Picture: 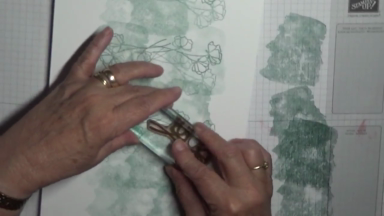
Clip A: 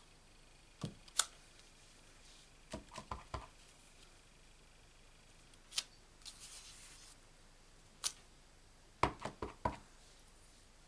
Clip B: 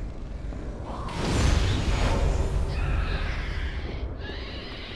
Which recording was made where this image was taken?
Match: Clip A